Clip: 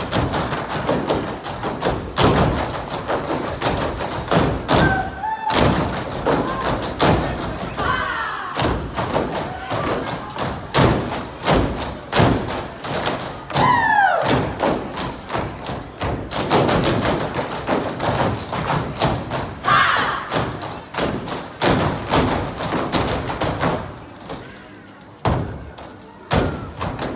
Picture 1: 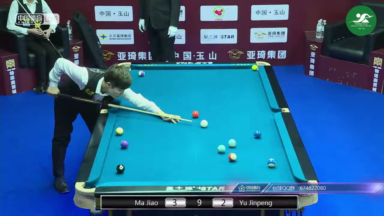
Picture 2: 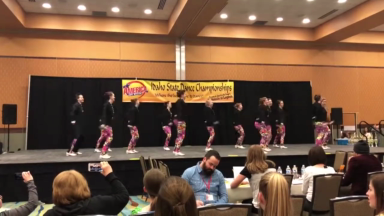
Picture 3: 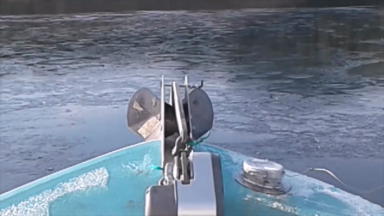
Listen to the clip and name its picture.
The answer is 2